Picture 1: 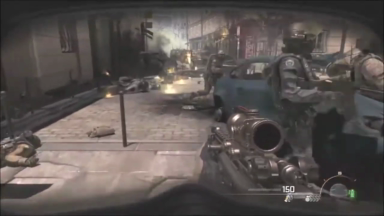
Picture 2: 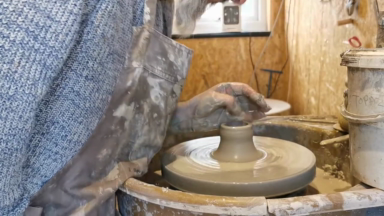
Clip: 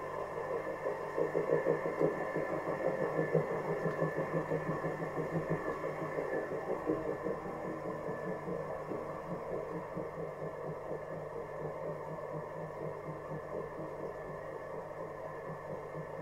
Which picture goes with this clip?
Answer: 2